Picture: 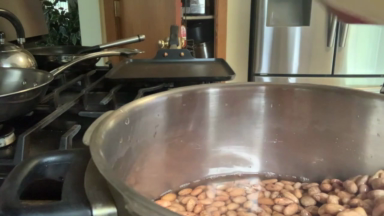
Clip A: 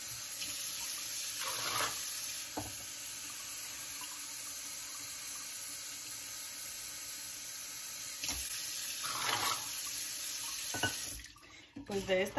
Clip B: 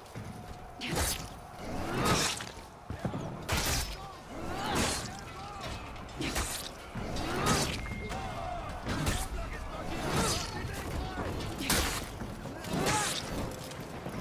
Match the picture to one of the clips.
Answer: A